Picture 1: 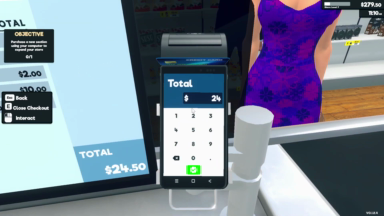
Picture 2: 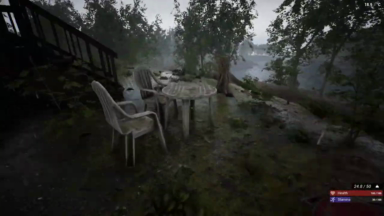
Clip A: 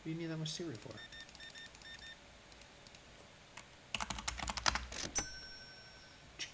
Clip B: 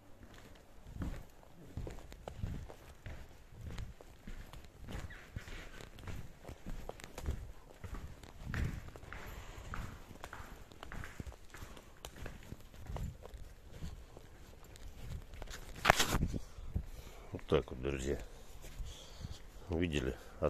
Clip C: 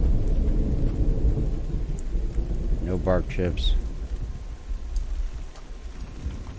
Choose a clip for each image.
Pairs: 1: A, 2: C